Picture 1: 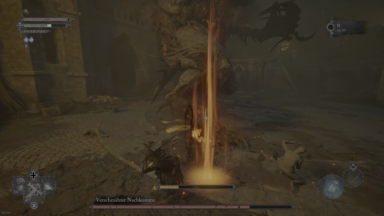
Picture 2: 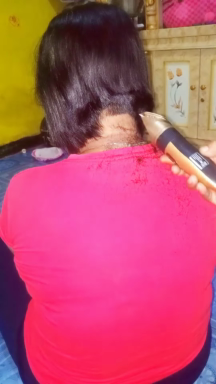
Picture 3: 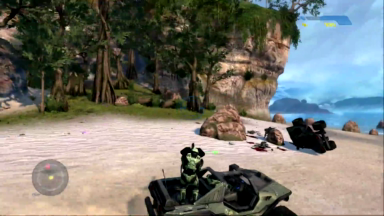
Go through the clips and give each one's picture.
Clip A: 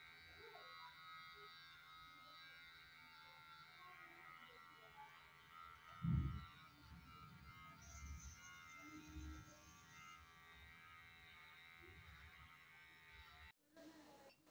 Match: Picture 2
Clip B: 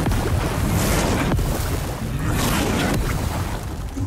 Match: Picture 1